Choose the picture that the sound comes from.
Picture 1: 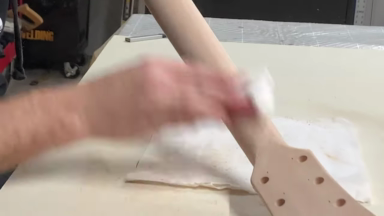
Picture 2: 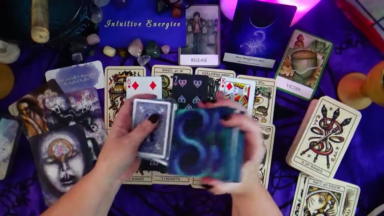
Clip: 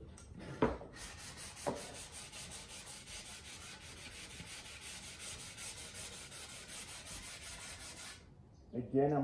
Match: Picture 1